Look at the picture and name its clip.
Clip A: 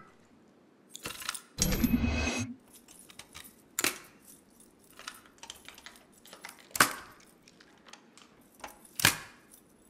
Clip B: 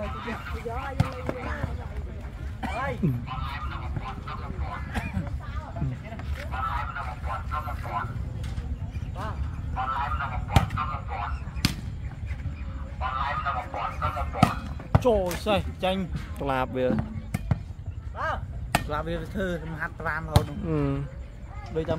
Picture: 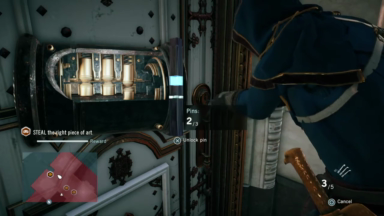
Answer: A